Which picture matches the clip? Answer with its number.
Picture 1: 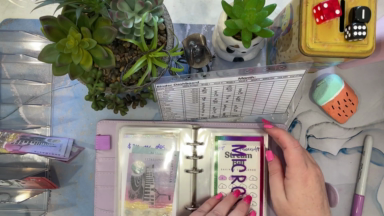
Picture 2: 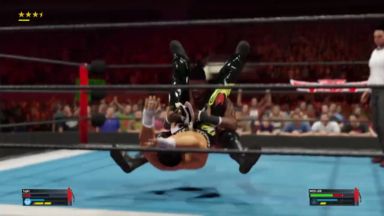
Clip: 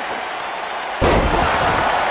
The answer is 2